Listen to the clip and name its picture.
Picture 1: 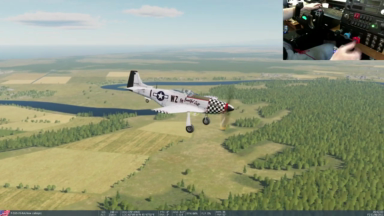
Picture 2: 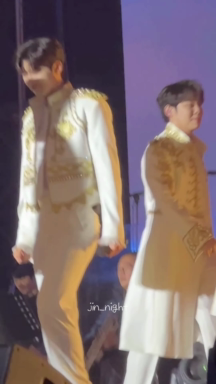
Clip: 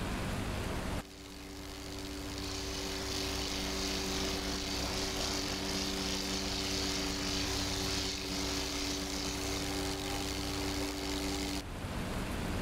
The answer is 1